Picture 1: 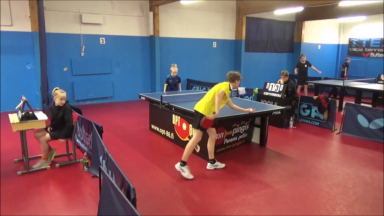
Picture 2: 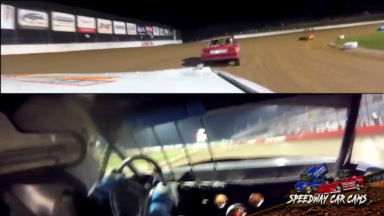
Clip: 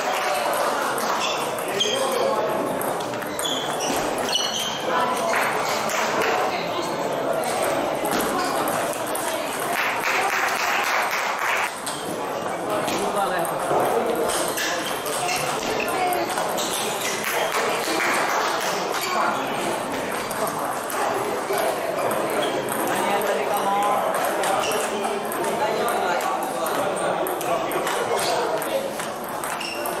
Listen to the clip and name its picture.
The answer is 1